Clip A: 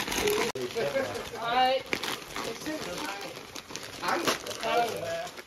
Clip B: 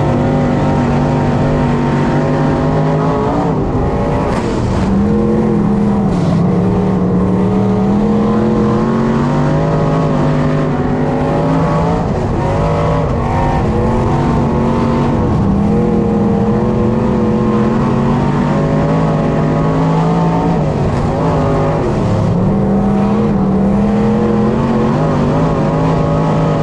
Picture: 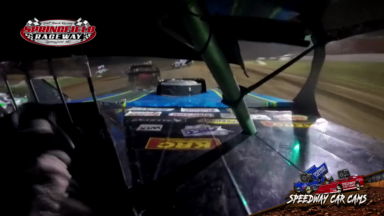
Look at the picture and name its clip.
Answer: B